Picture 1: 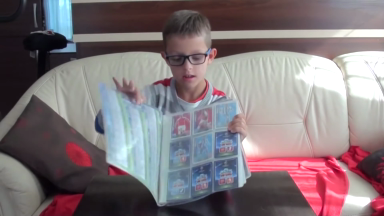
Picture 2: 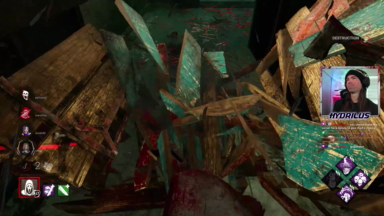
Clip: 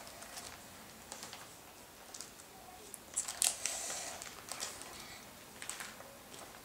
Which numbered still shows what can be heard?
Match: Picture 1